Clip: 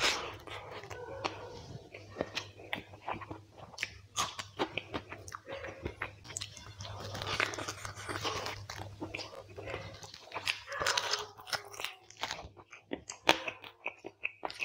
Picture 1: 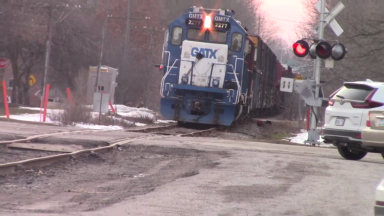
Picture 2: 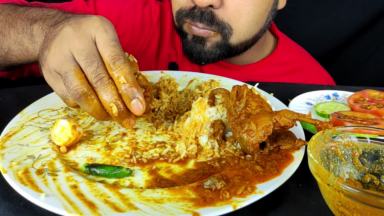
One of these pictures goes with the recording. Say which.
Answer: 2